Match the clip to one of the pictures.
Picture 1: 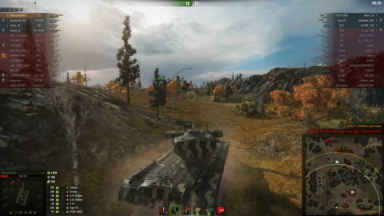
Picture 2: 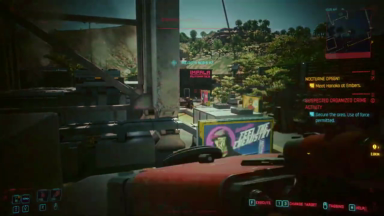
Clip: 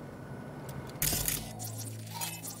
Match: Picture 2